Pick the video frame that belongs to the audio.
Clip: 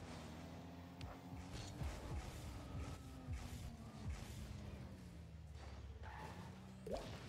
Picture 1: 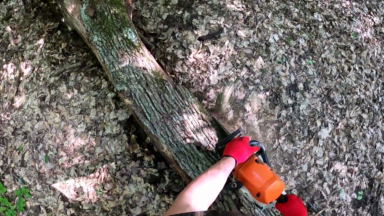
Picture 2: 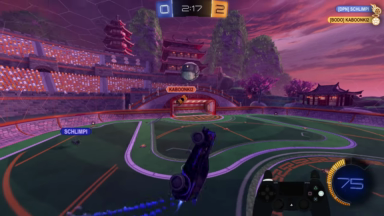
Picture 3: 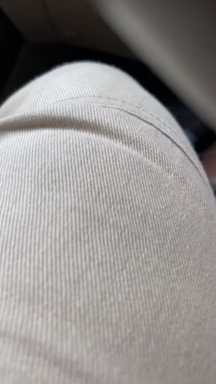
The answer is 2